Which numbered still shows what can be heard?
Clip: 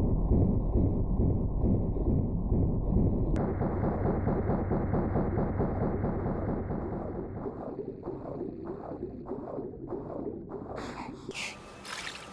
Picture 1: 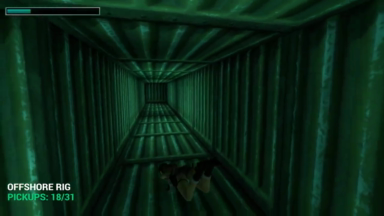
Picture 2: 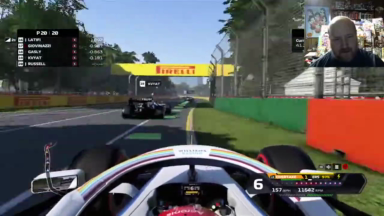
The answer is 1